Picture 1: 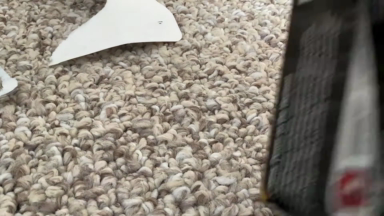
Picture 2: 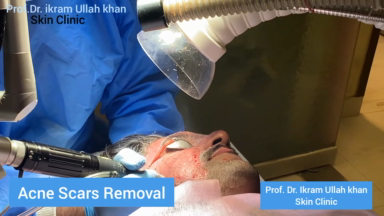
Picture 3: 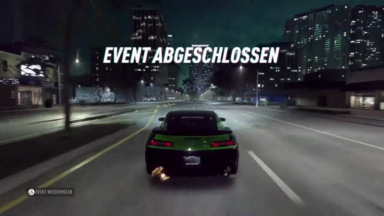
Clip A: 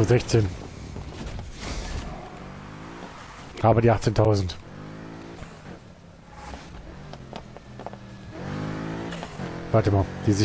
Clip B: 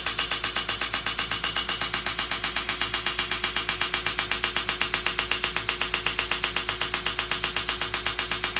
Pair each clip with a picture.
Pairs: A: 3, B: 2